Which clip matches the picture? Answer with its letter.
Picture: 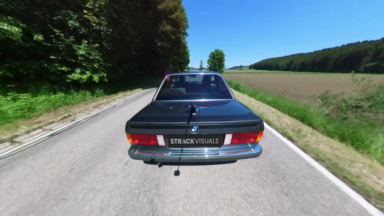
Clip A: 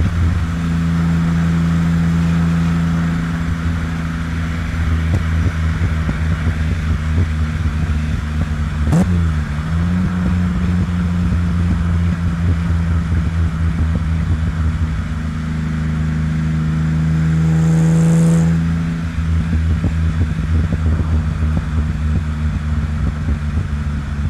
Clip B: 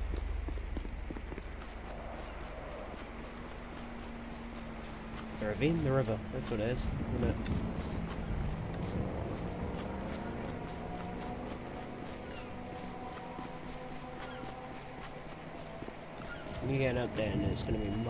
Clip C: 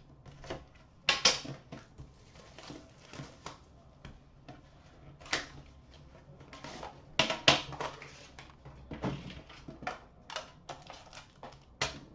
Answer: A